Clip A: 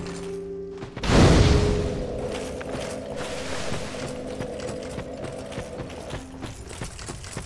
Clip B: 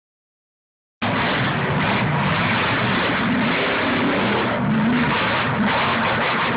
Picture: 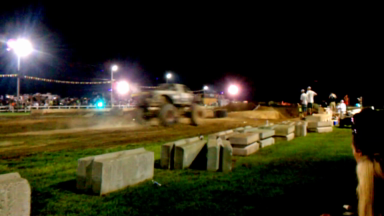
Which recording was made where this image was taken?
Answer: B